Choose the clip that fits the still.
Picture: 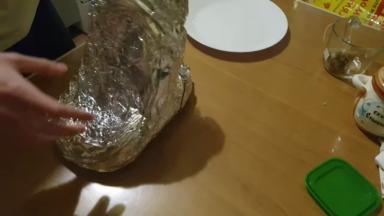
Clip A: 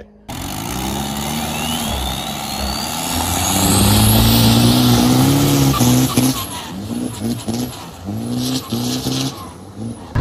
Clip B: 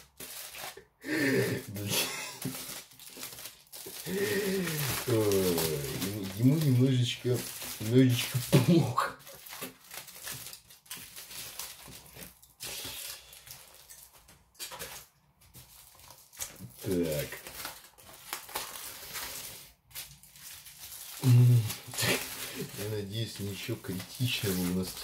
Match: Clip B